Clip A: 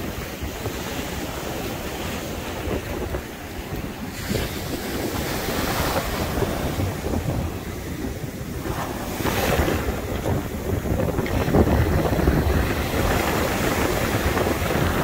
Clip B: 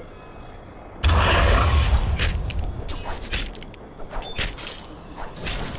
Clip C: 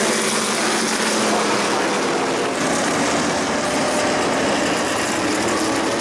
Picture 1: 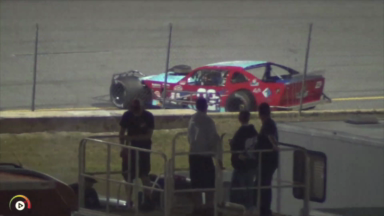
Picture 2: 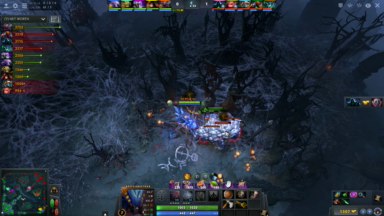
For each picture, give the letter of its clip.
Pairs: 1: C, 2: B